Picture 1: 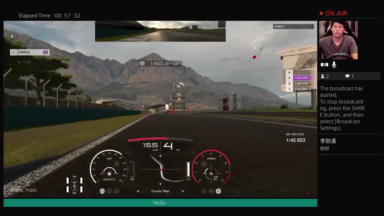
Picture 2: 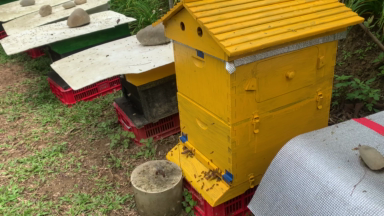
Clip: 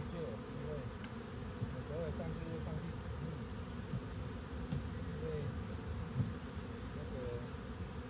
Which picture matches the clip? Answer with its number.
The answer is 2